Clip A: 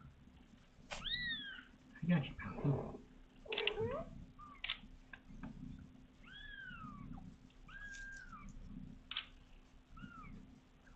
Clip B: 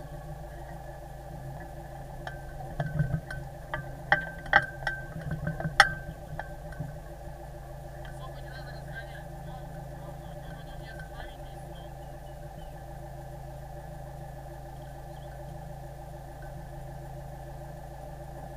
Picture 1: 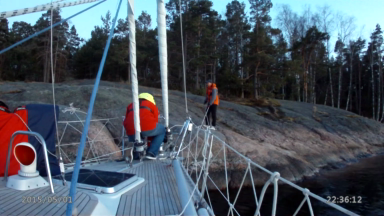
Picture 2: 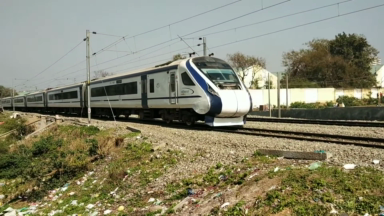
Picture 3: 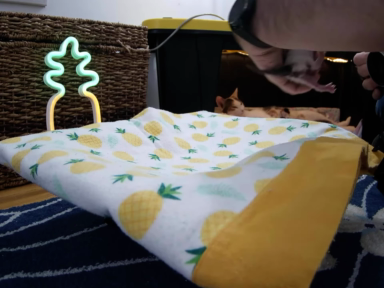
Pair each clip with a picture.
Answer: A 3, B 1